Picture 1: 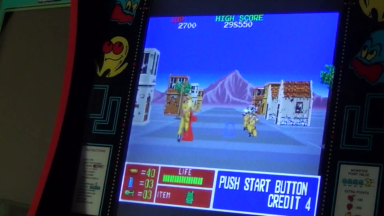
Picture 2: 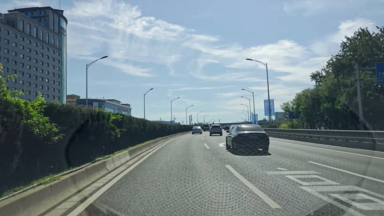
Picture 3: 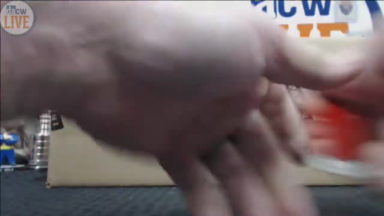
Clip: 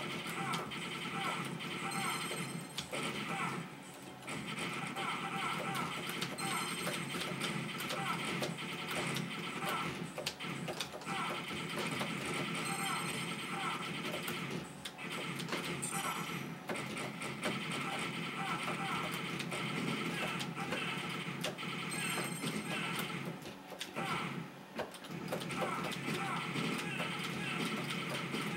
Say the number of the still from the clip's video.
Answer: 1